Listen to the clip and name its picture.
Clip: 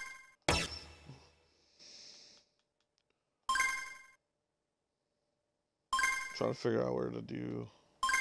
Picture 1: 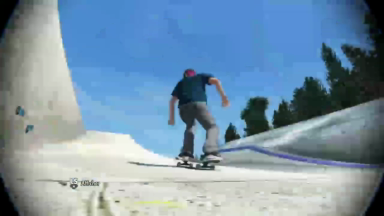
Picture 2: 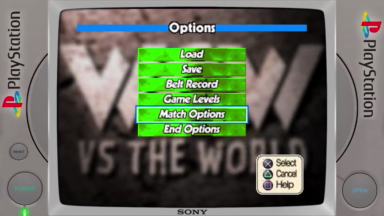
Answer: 2